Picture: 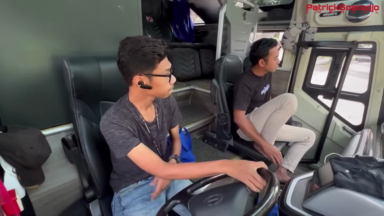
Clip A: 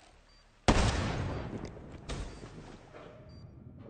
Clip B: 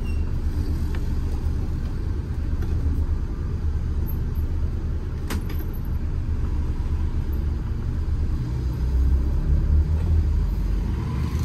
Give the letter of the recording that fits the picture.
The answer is B